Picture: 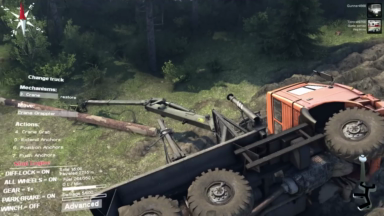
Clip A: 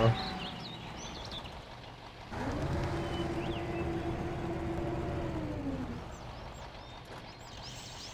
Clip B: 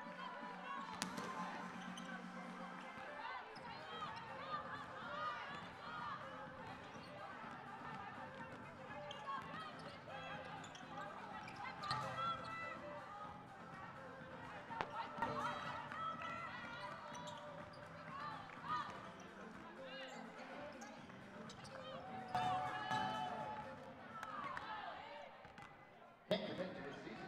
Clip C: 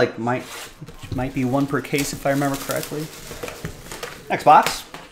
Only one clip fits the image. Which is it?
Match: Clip A